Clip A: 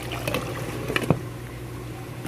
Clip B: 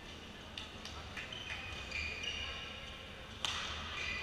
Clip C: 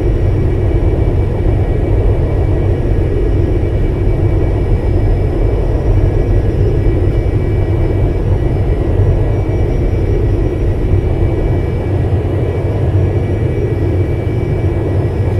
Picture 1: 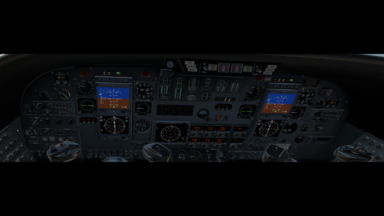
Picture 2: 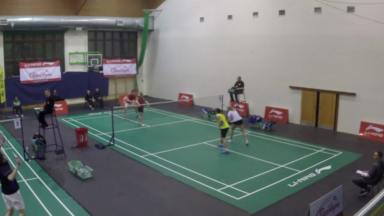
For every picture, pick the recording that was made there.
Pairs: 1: C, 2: B